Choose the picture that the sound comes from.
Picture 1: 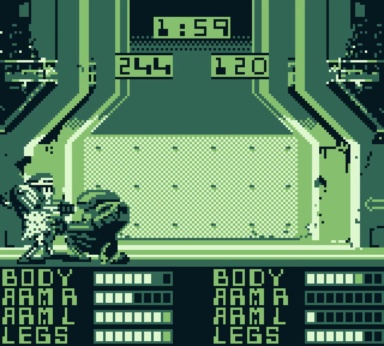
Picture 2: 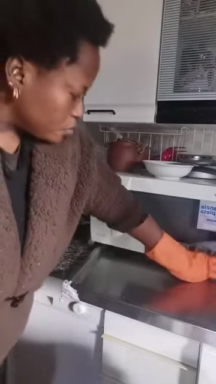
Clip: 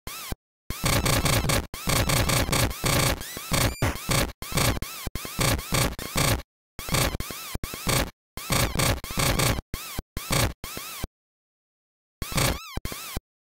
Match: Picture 1